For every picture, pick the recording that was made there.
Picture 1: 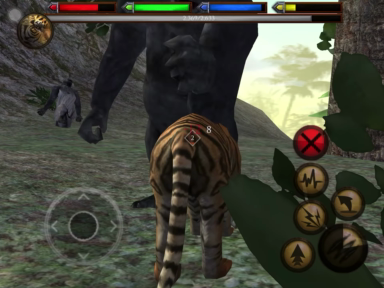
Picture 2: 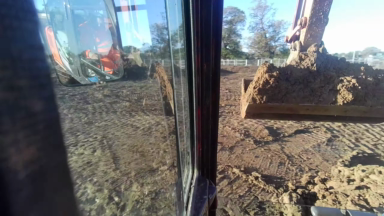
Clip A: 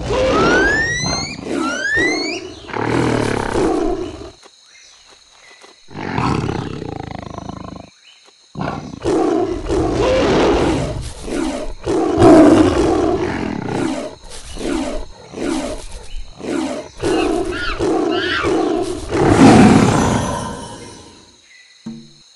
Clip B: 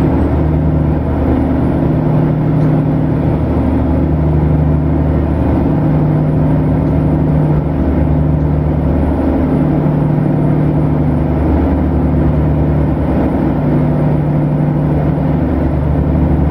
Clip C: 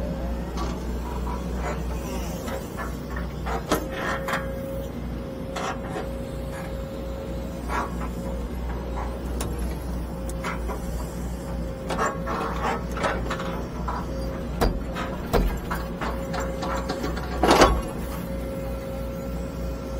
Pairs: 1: A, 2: C